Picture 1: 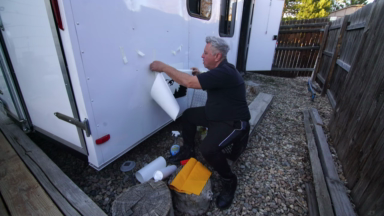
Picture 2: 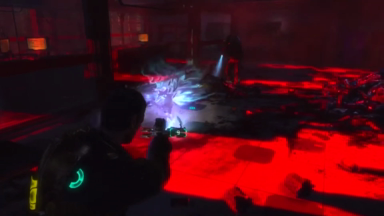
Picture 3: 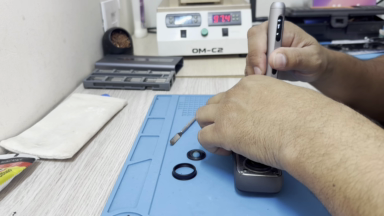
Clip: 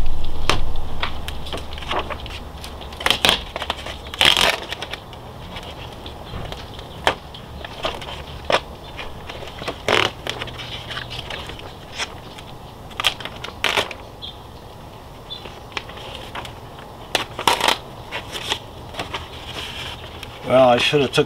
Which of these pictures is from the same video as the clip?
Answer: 1